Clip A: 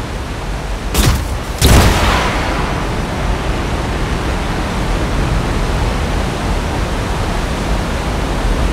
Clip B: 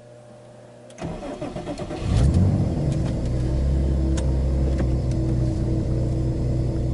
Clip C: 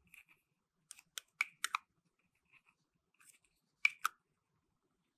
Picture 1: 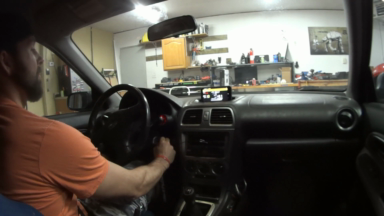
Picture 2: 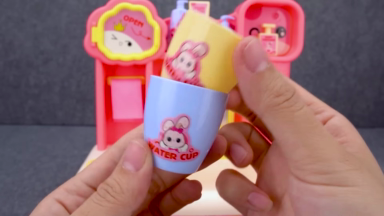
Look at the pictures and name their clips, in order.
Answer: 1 B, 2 C